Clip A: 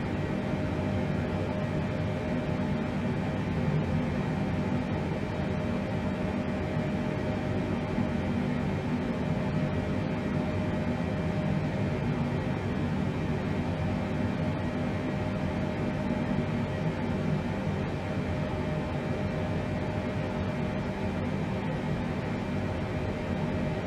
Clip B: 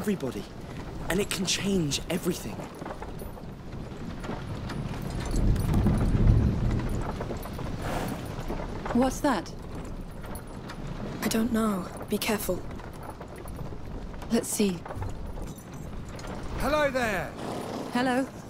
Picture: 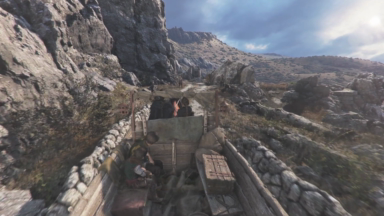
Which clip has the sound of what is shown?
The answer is B